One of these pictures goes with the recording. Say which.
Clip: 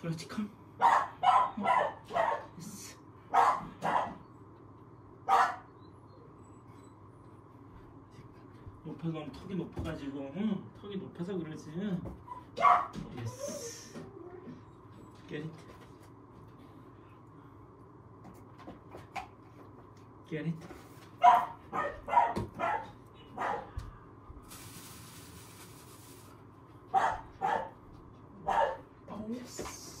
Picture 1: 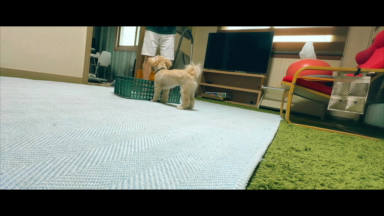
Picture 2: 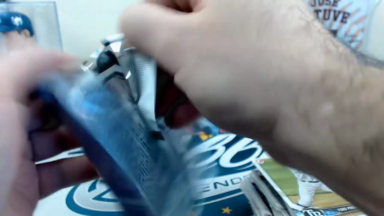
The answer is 1